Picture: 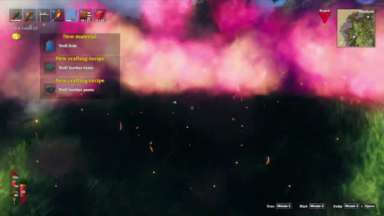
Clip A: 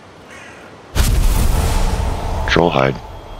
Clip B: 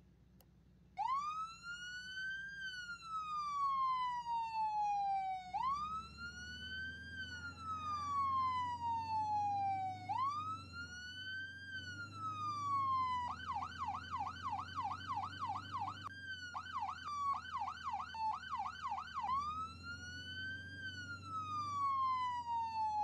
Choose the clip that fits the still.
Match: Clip A